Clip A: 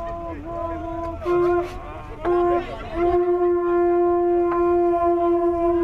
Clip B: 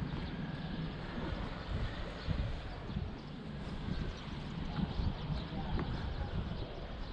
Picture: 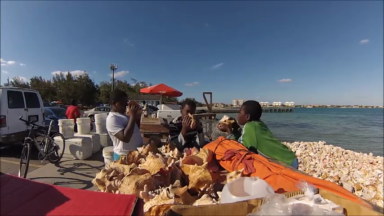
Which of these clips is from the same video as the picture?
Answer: A